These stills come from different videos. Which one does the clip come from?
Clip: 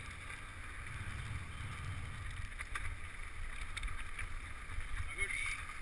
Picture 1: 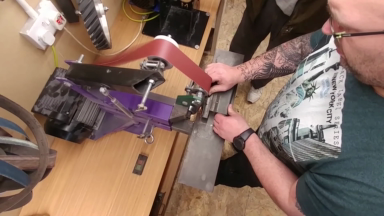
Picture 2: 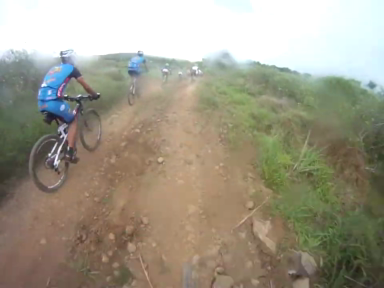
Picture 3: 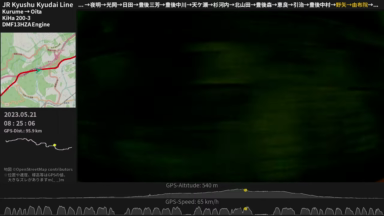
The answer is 2